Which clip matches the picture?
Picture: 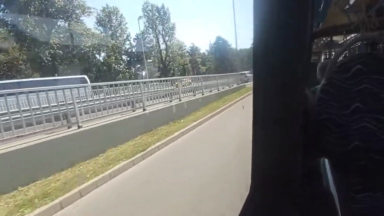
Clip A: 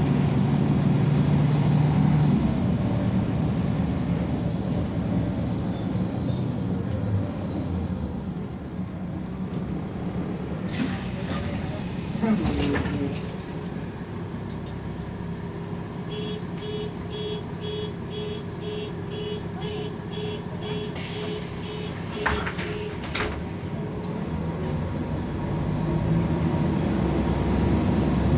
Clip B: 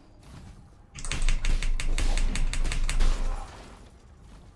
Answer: A